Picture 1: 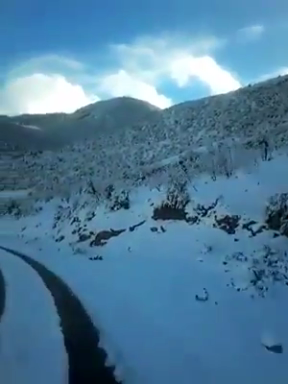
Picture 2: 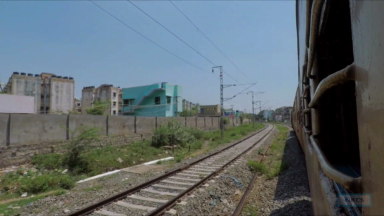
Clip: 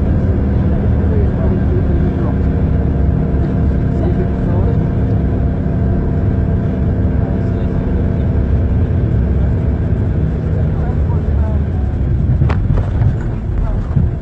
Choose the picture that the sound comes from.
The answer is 1